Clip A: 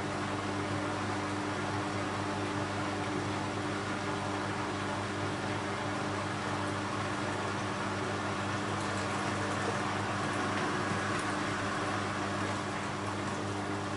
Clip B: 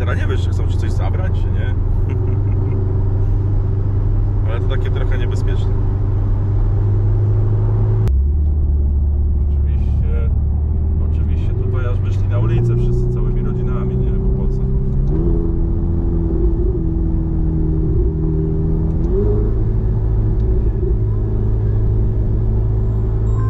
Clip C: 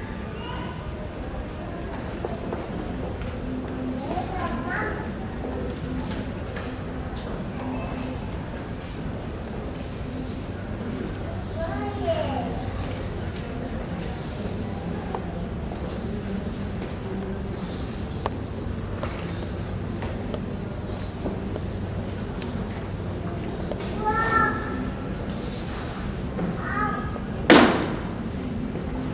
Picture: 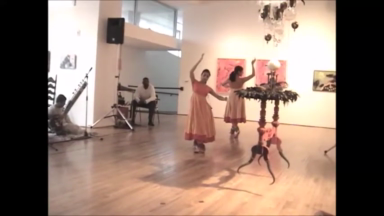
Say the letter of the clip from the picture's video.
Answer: C